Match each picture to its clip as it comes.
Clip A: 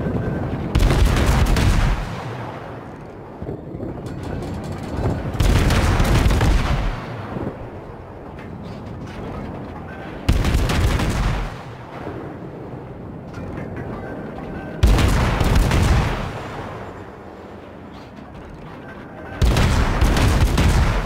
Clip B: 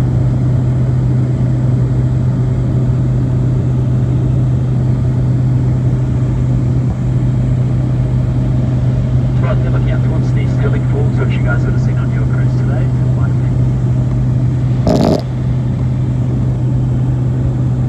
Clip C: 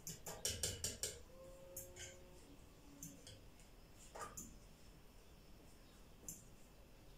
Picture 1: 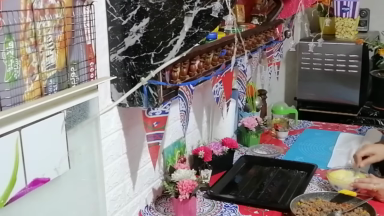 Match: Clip C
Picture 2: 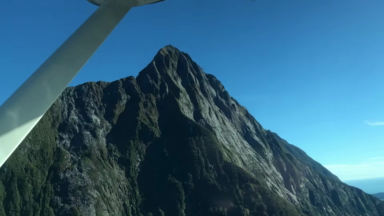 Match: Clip B